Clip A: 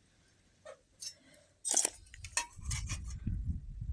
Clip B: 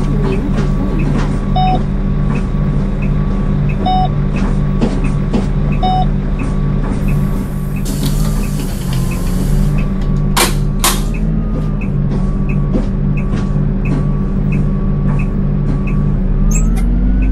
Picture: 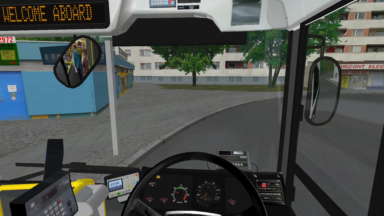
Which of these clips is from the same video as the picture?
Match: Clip B